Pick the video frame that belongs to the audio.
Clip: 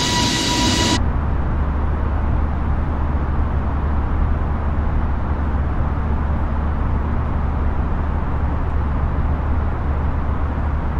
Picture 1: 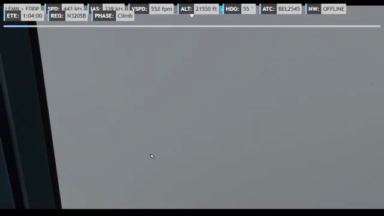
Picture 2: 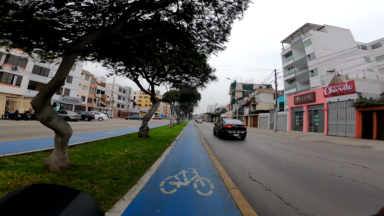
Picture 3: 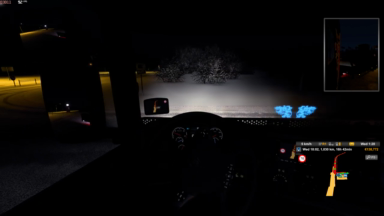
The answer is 1